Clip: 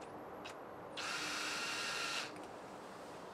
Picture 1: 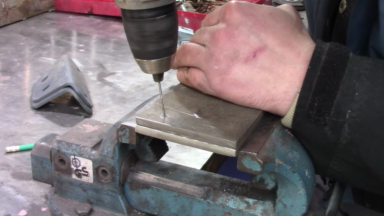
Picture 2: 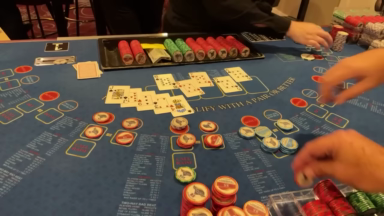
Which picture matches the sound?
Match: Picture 1